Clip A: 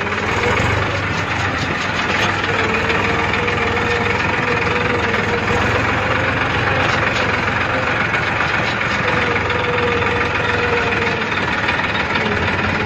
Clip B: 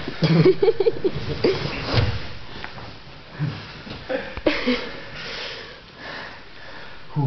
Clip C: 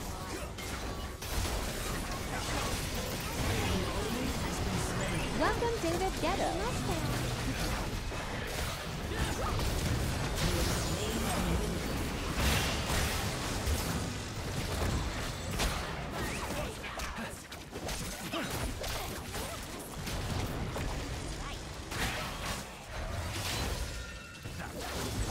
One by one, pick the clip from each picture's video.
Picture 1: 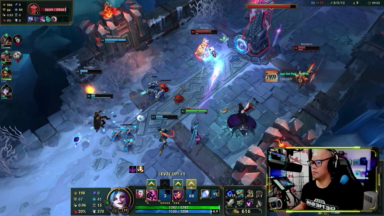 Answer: C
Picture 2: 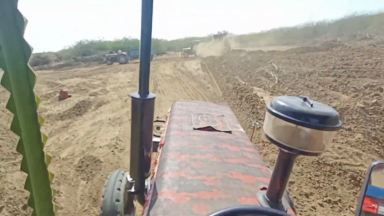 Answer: A